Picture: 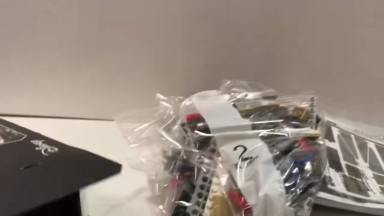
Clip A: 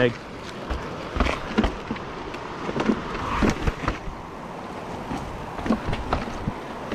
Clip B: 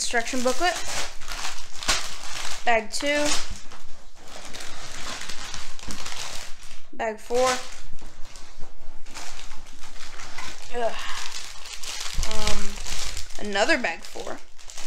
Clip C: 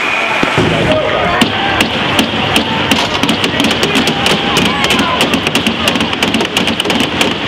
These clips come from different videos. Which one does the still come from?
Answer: B